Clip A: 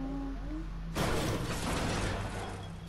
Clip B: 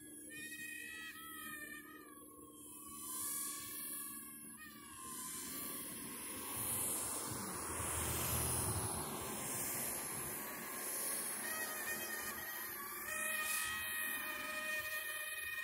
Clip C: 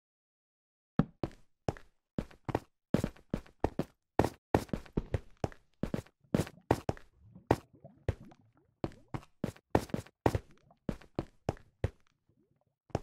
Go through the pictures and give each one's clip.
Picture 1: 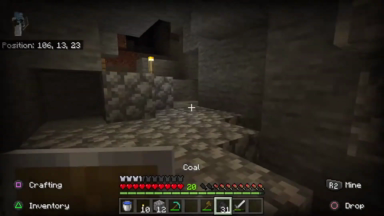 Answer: C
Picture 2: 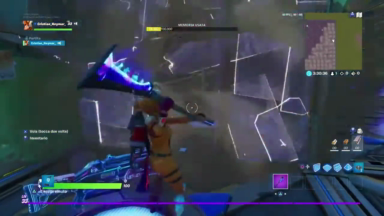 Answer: A